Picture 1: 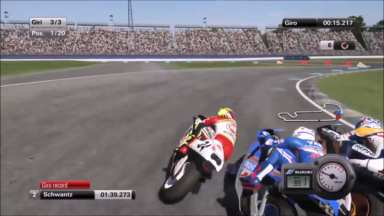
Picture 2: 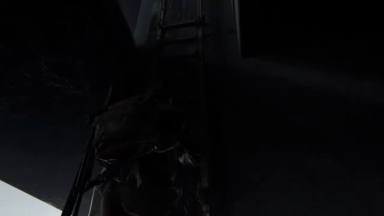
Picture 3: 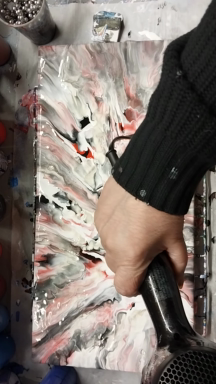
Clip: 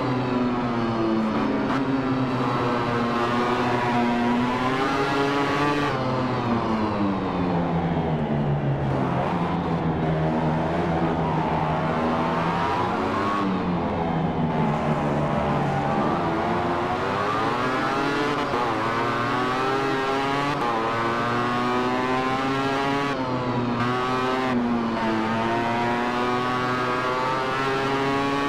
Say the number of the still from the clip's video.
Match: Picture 1